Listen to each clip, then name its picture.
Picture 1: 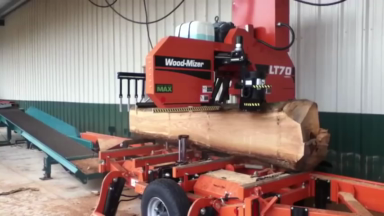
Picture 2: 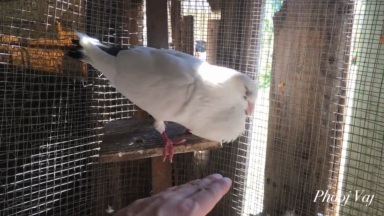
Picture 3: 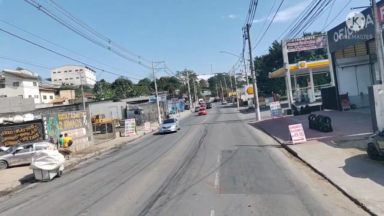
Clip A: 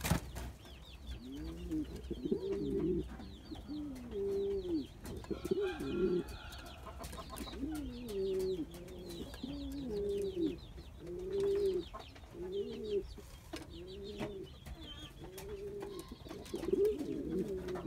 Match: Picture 2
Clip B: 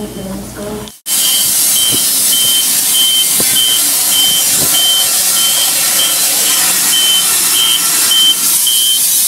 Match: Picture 1